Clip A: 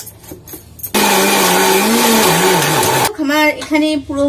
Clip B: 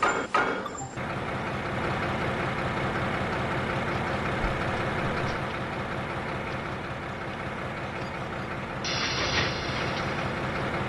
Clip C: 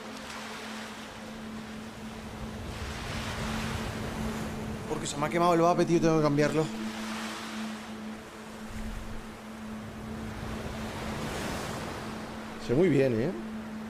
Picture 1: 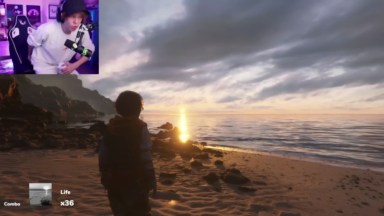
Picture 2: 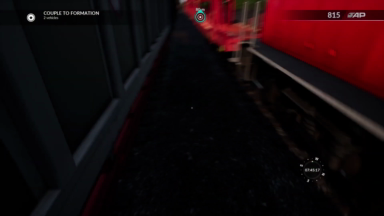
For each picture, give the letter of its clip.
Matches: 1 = C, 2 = B